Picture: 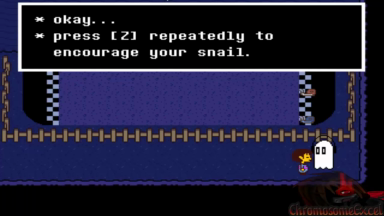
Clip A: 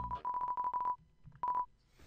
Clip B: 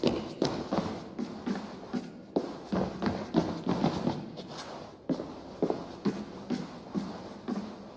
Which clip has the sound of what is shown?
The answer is A